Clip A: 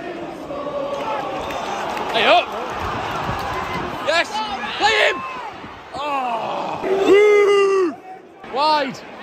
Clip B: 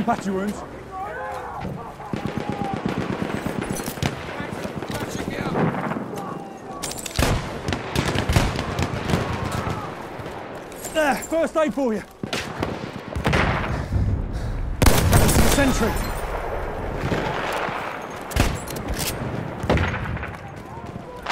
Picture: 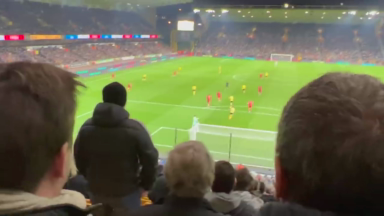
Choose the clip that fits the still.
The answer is A